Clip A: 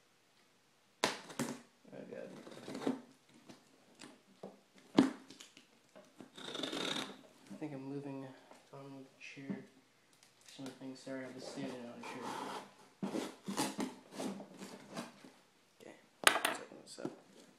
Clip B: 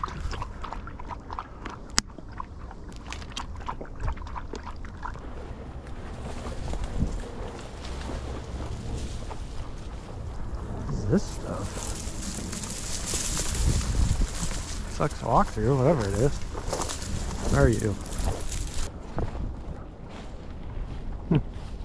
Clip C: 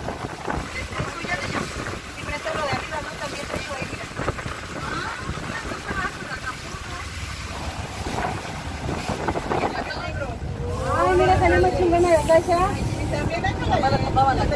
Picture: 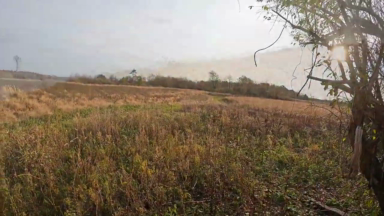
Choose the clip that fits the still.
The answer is B